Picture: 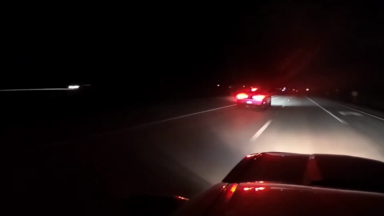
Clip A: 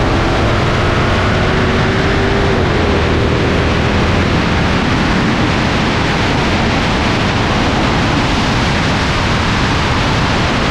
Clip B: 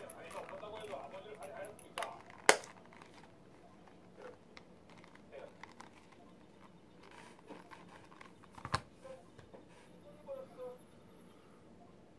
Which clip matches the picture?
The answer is A